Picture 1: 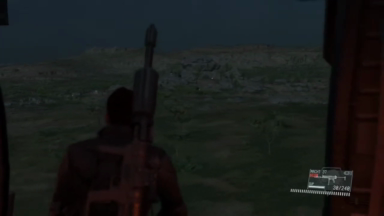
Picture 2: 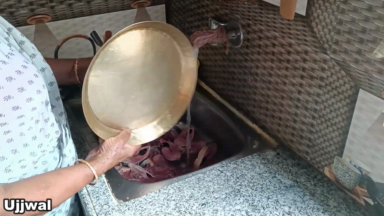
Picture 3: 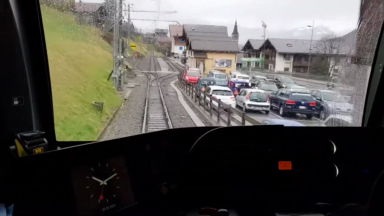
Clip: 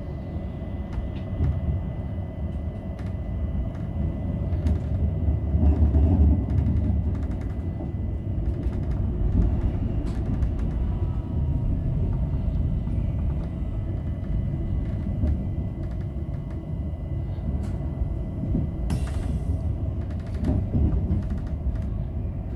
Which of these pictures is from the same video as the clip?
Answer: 3